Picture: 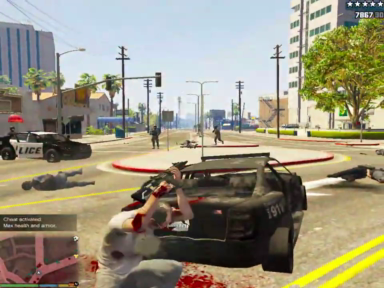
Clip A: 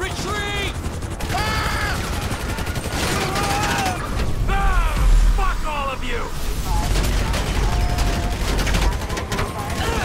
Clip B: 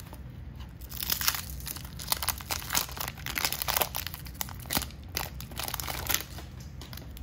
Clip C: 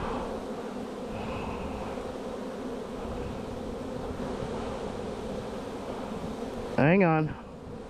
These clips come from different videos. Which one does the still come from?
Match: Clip A